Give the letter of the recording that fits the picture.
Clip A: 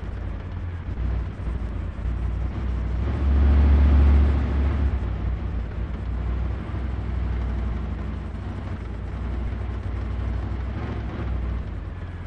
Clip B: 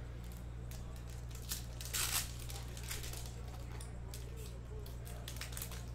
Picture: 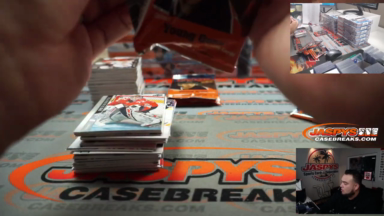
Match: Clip B